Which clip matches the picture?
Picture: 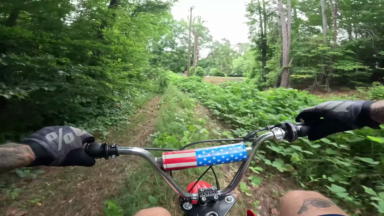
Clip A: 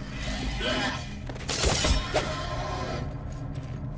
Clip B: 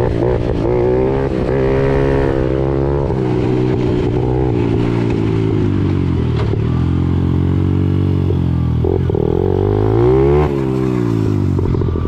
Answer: B